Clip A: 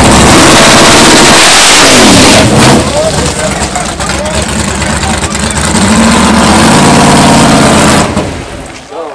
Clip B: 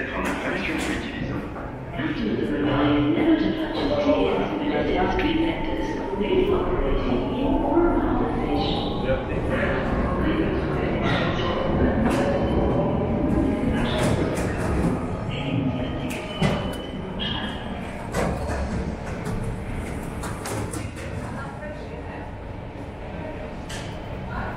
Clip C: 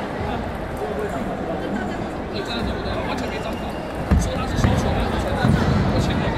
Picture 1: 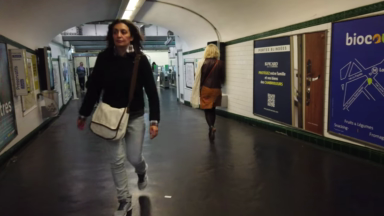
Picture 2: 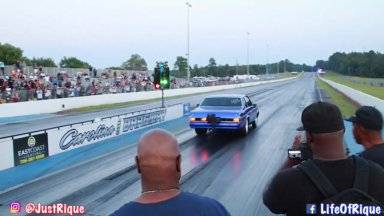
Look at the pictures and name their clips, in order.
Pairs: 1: B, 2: A